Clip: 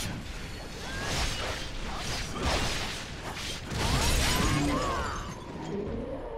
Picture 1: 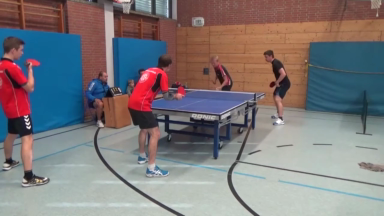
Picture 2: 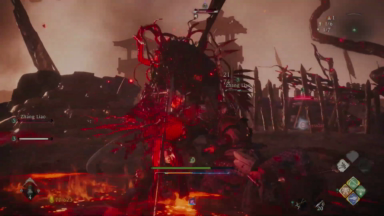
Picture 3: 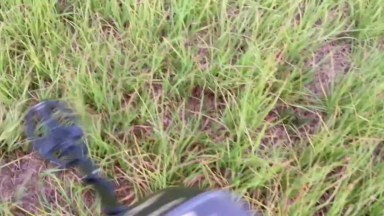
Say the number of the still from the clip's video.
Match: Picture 2